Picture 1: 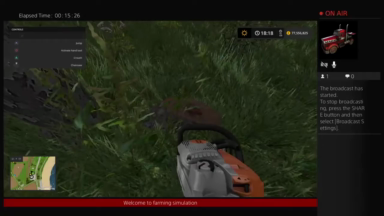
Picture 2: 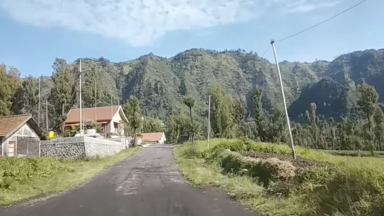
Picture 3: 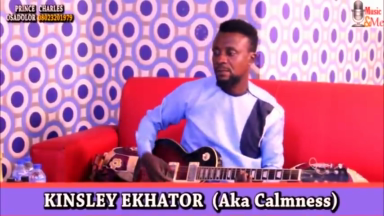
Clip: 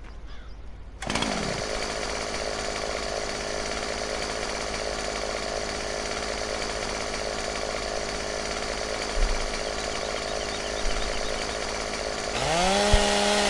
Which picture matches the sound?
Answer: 1